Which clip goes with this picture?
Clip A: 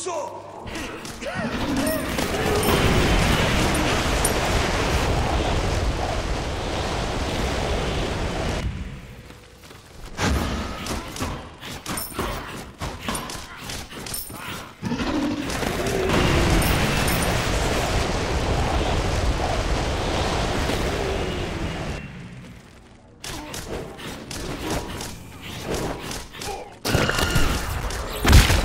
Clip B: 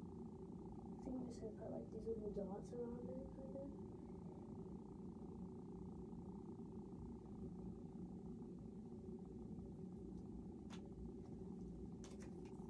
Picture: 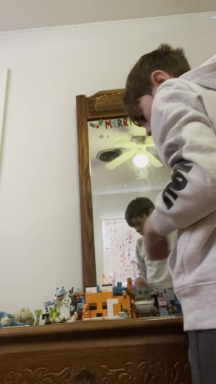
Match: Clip B